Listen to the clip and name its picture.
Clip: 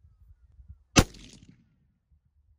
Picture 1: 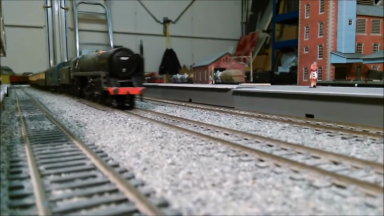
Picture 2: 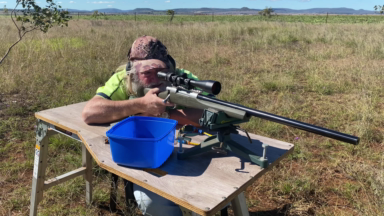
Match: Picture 2